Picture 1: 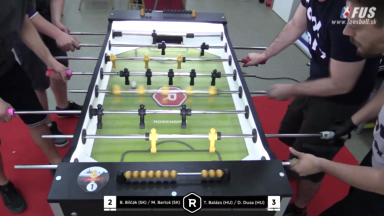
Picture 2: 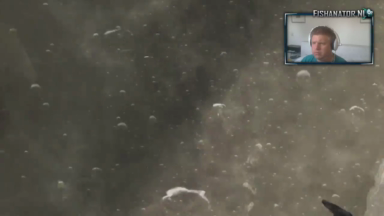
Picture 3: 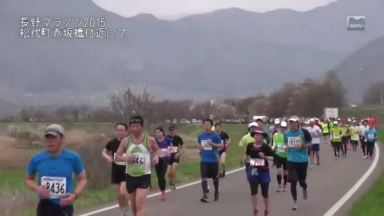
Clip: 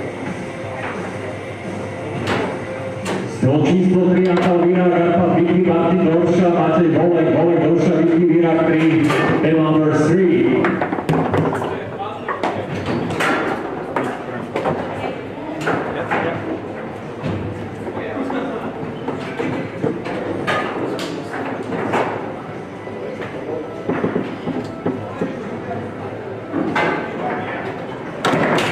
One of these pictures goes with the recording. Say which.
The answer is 1